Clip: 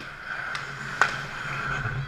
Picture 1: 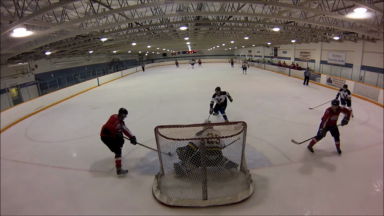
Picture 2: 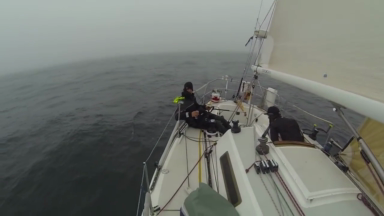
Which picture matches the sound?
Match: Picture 1